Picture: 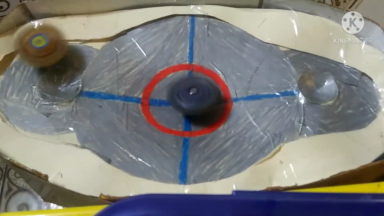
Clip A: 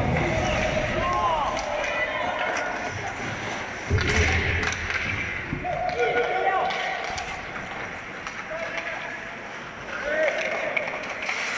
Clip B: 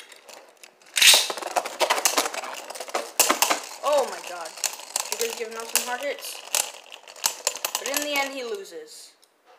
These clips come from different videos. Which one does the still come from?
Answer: B